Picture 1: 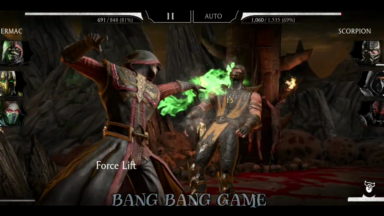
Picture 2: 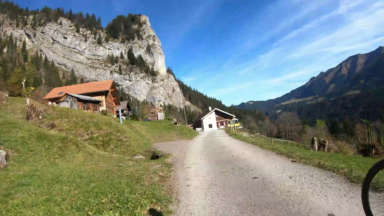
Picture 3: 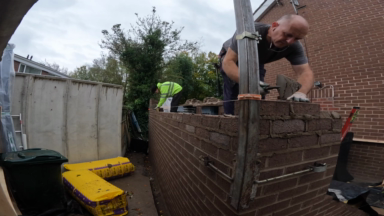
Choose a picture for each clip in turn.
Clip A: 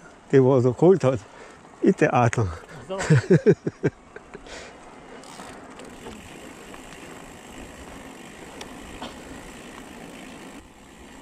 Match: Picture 2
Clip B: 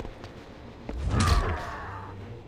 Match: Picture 1